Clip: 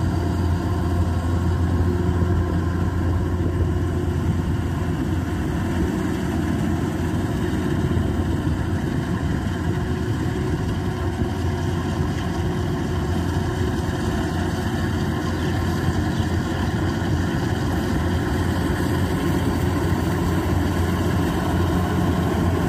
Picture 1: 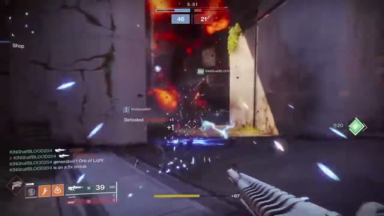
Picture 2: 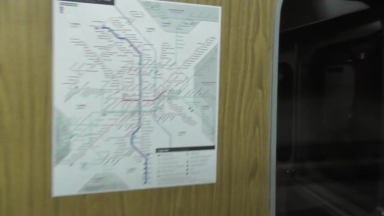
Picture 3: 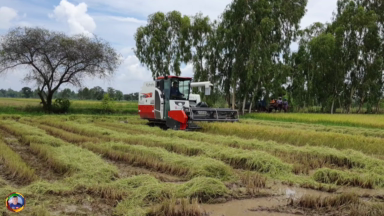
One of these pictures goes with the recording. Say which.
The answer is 3